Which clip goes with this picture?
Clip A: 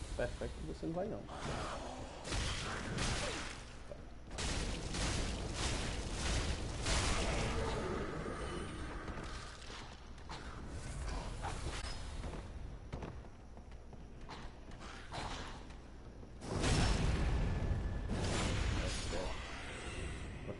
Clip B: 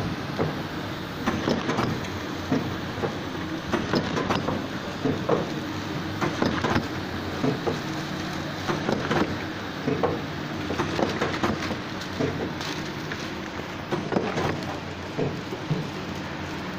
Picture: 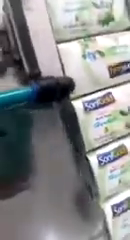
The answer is B